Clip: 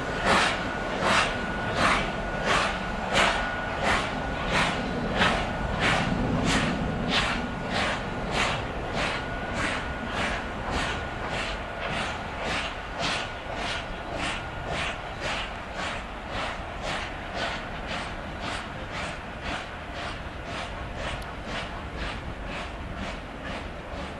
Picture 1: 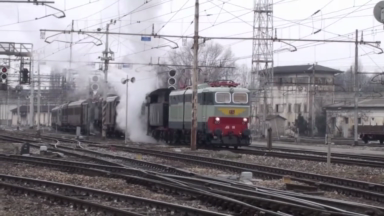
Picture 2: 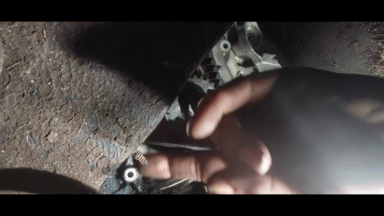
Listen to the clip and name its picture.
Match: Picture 1